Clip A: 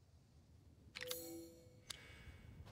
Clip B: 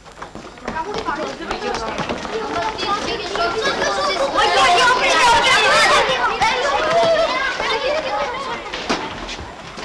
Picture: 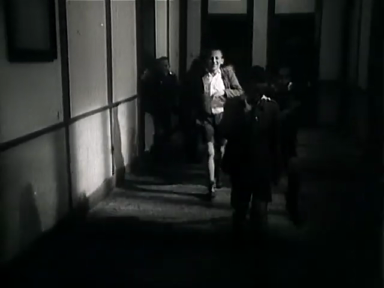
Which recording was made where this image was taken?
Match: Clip B